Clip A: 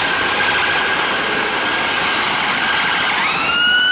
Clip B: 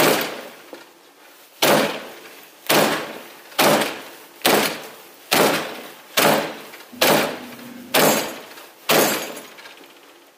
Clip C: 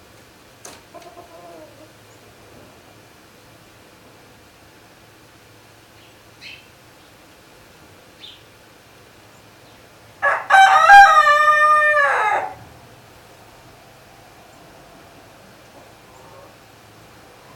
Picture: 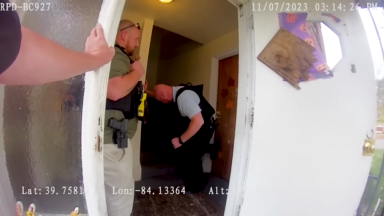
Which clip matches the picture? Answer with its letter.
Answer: B